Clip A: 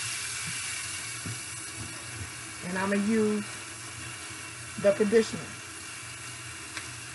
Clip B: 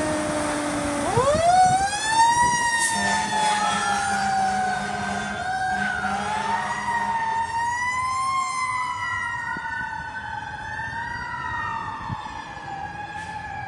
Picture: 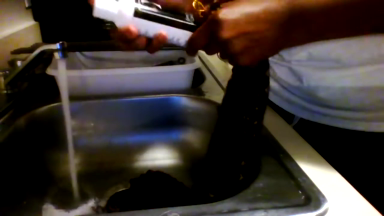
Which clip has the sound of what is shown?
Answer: A